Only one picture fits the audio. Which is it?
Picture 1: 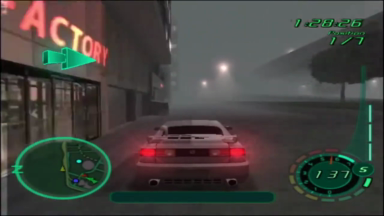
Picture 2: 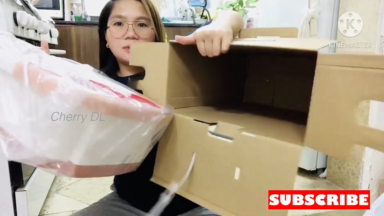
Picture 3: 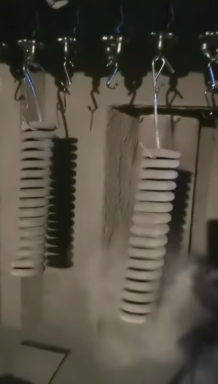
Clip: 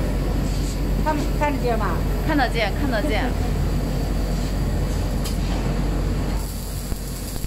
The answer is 3